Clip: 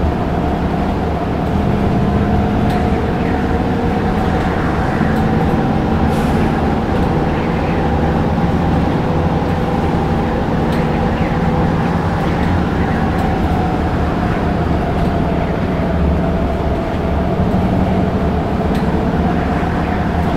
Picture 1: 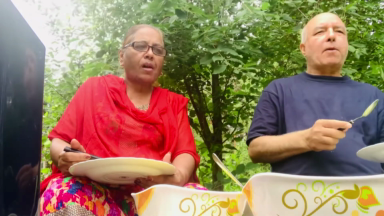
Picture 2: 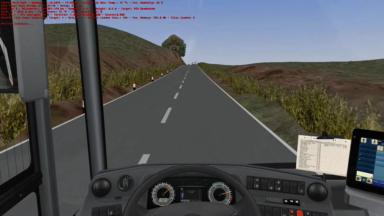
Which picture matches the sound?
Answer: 2